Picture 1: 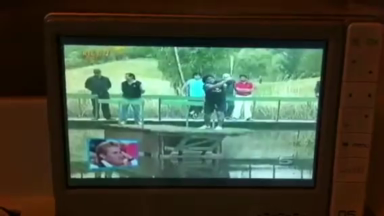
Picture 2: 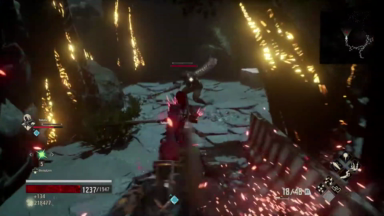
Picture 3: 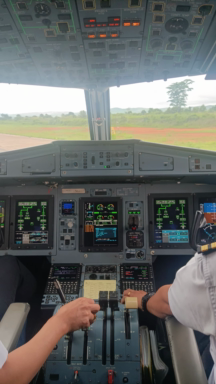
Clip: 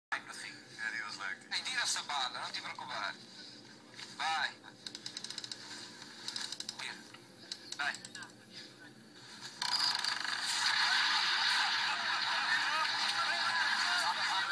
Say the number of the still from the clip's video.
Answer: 1